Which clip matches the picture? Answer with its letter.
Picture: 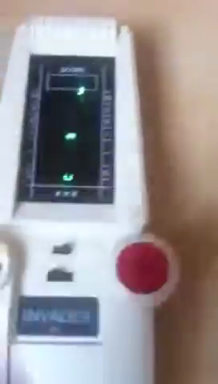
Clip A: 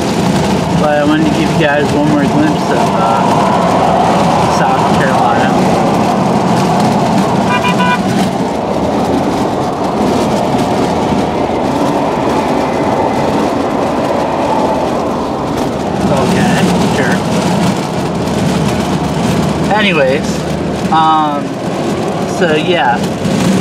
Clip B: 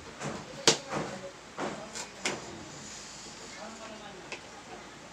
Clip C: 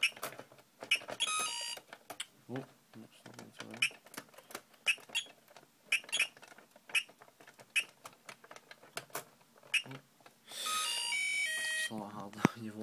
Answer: C